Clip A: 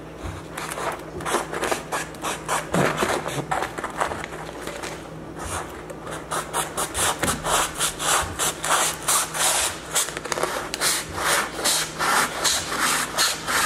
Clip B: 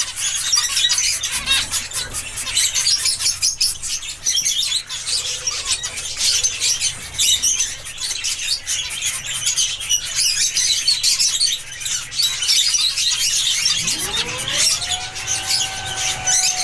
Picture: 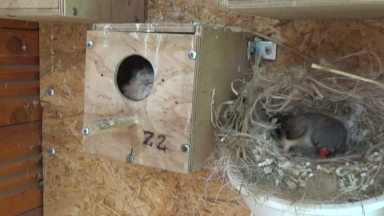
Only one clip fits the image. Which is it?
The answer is B